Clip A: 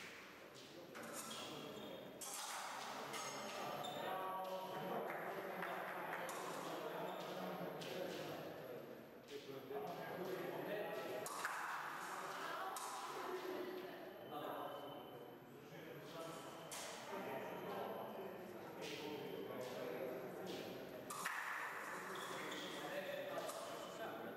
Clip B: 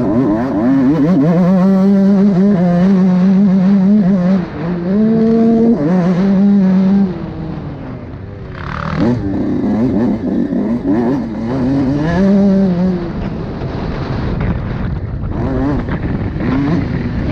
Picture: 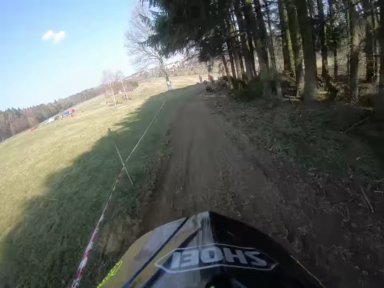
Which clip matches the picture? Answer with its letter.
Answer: B